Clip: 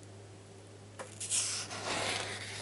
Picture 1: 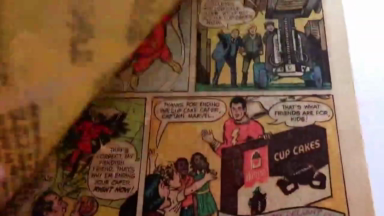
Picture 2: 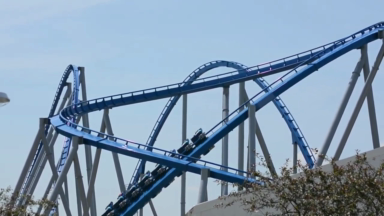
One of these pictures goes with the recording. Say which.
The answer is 1